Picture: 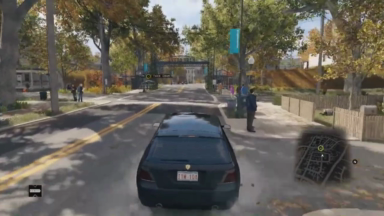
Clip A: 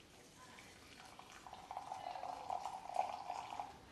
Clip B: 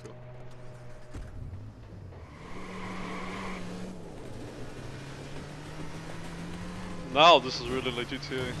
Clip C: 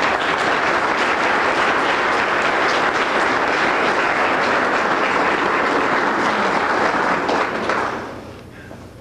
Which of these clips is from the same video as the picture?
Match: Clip B